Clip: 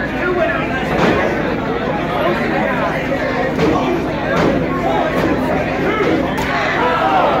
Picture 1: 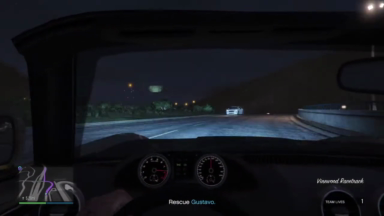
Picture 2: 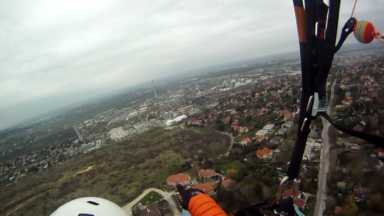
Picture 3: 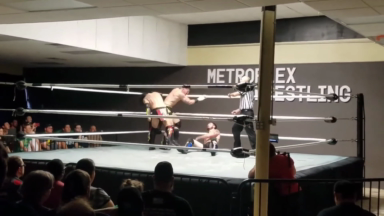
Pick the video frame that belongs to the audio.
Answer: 3